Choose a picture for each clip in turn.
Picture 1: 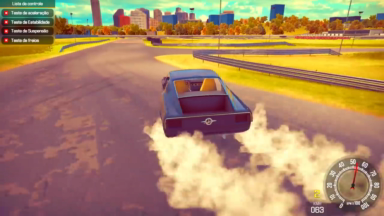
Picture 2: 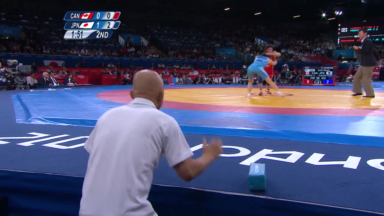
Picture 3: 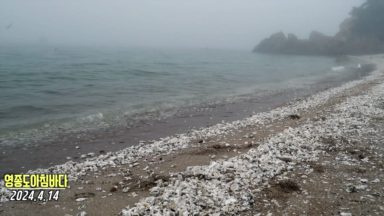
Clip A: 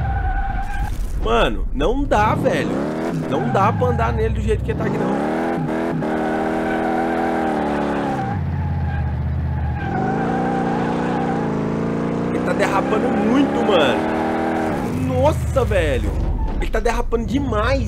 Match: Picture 1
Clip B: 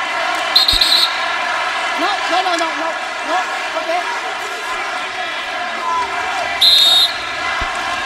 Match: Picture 2